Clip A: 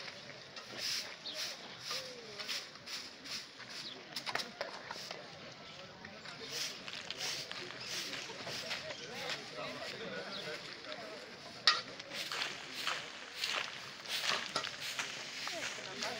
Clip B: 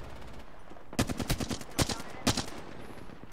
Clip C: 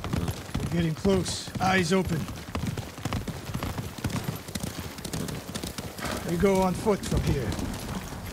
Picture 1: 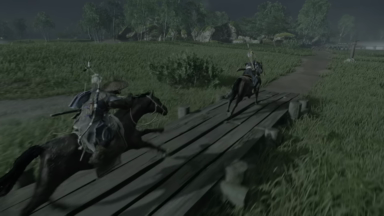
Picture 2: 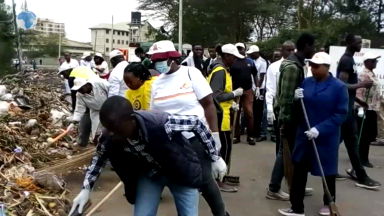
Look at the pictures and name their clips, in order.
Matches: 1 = C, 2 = A